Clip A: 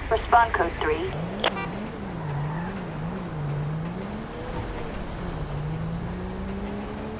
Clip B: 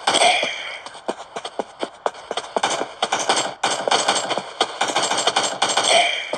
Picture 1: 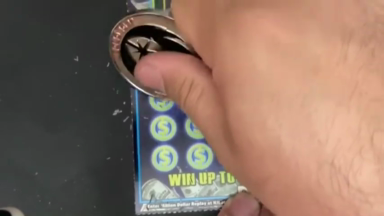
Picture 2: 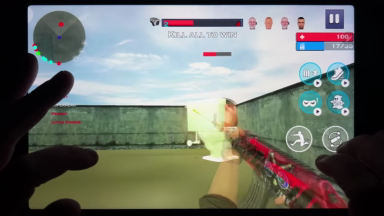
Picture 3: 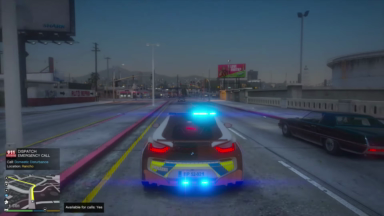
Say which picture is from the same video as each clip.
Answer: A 3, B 2